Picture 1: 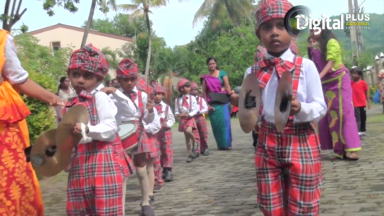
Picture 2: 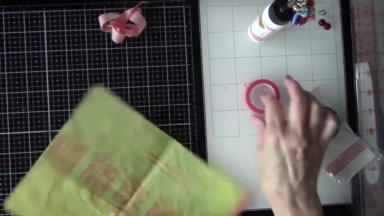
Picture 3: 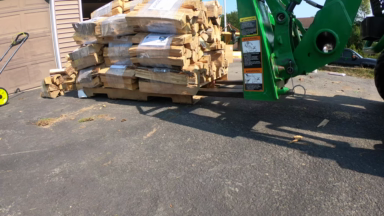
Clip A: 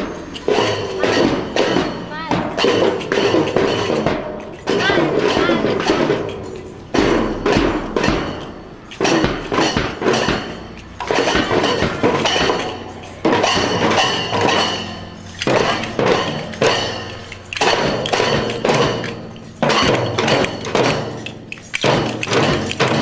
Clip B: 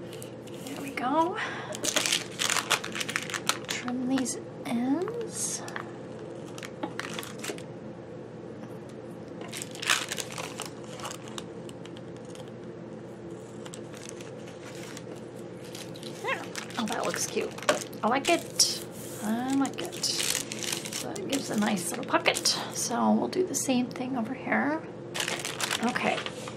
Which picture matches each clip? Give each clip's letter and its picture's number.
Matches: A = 1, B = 2